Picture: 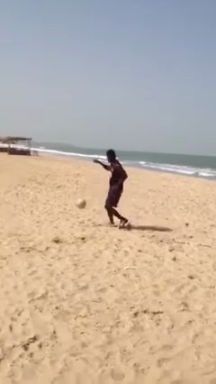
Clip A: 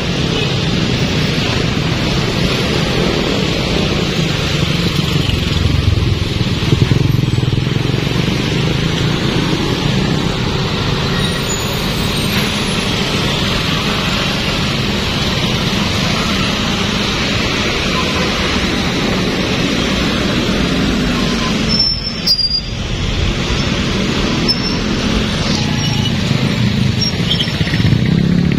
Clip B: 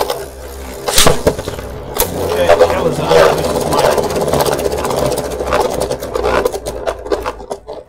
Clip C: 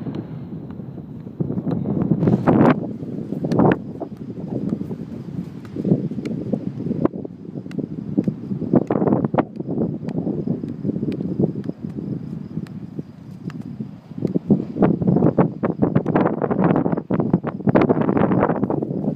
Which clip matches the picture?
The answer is C